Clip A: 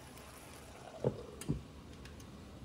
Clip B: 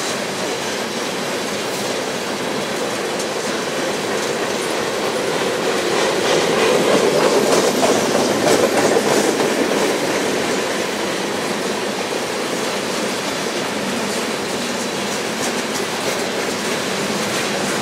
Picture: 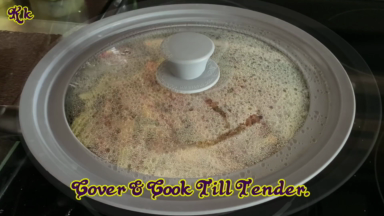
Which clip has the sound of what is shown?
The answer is A